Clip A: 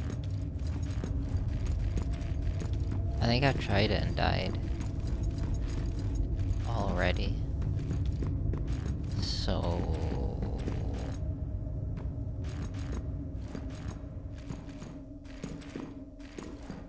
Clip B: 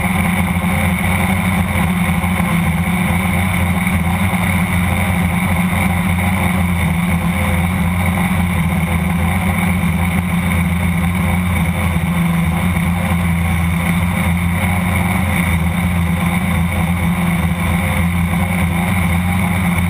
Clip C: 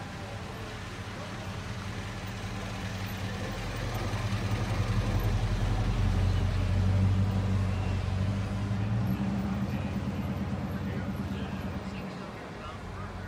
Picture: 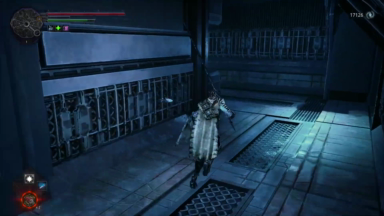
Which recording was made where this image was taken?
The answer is A